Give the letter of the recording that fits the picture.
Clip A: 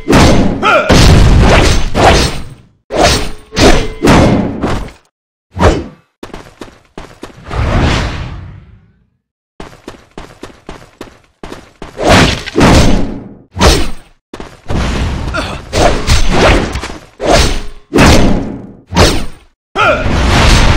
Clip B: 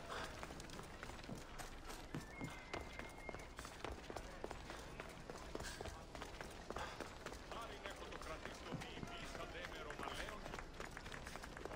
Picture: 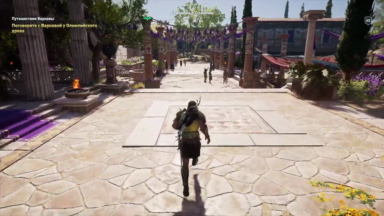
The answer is B